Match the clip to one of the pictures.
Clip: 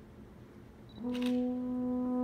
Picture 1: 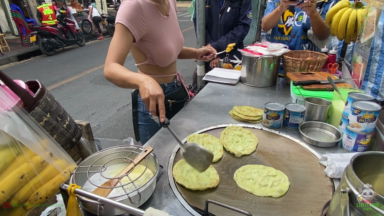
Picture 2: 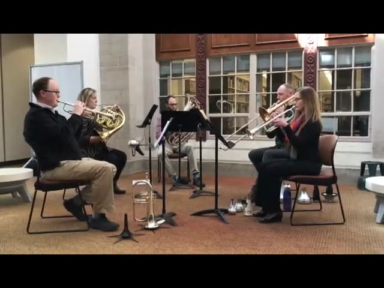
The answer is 2